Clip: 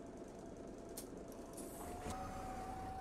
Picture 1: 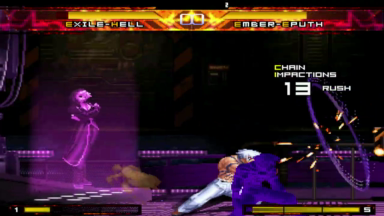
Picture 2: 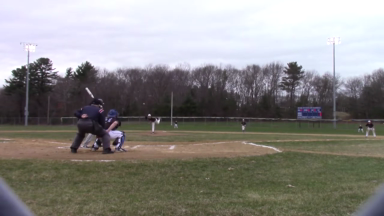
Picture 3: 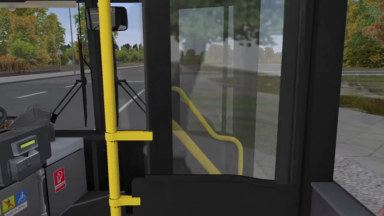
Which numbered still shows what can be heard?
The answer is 3